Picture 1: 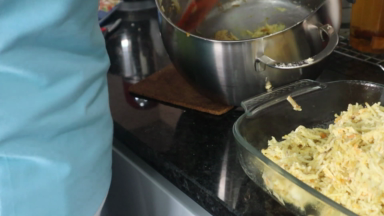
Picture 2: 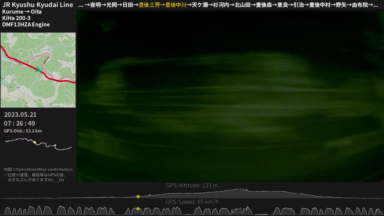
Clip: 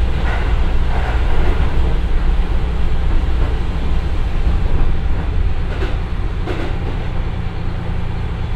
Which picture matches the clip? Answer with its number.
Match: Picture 2